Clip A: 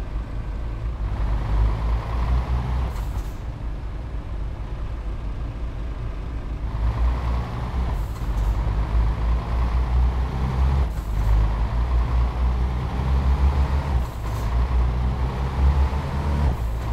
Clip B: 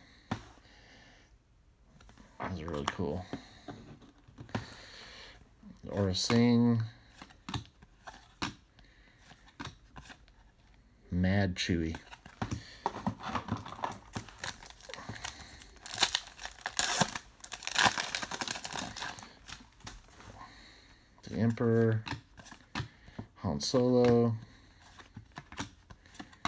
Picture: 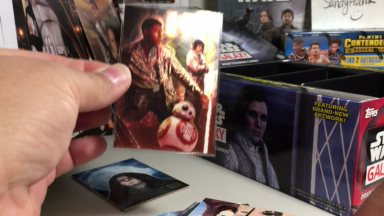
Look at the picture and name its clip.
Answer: B